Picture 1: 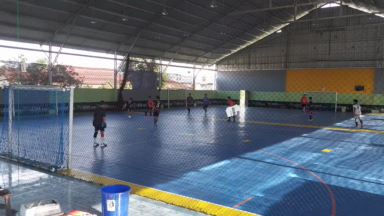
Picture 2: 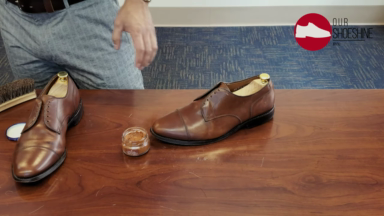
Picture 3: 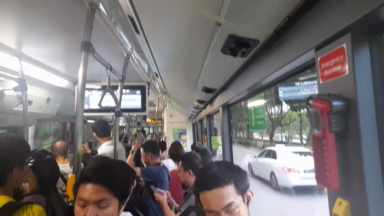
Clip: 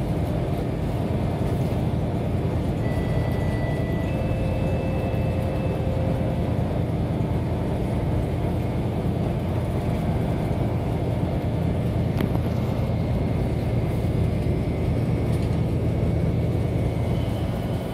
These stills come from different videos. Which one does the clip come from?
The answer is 3